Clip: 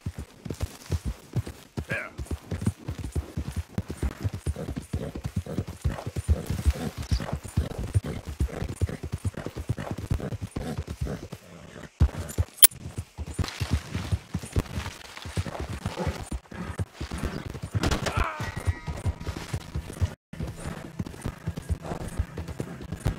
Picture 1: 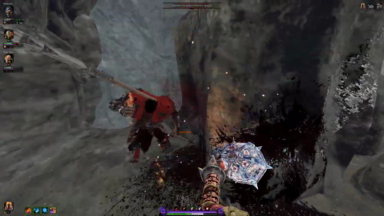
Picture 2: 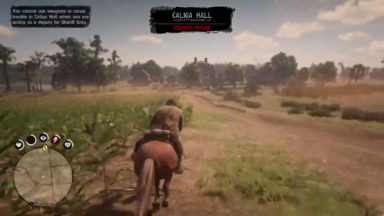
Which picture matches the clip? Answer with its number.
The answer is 2